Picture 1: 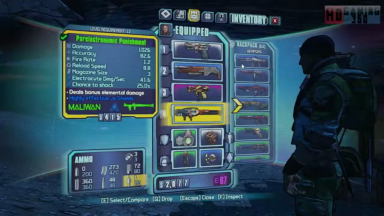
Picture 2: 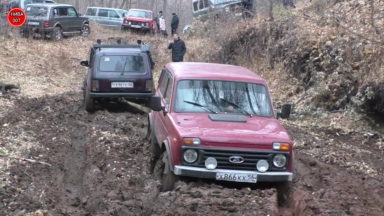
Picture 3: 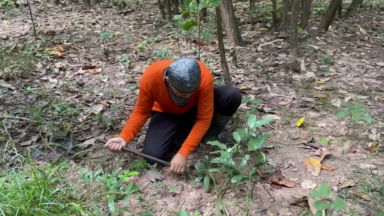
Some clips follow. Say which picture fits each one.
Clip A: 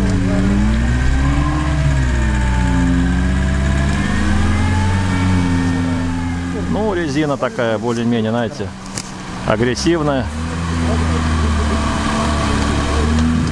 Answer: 2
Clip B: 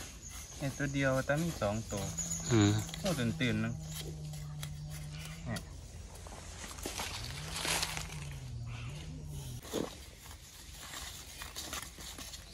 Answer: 3